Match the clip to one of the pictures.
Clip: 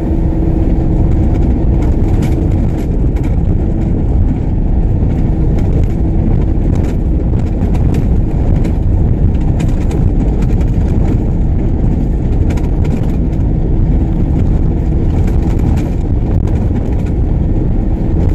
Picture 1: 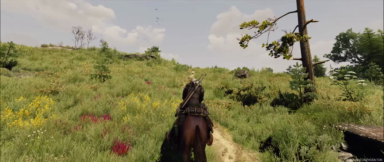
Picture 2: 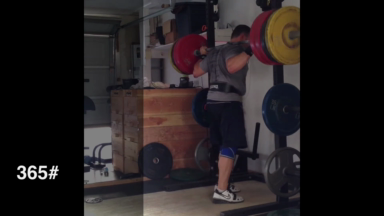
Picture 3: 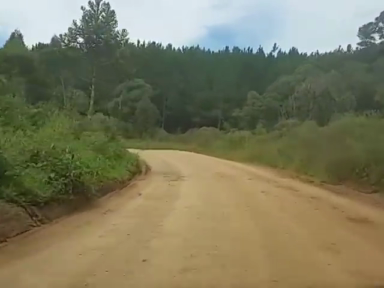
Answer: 3